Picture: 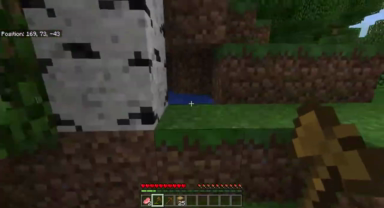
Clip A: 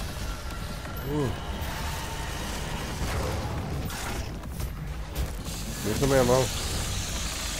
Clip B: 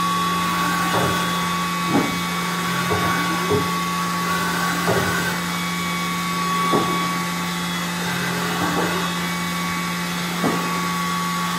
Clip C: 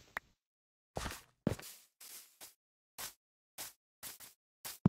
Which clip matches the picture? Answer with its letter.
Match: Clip C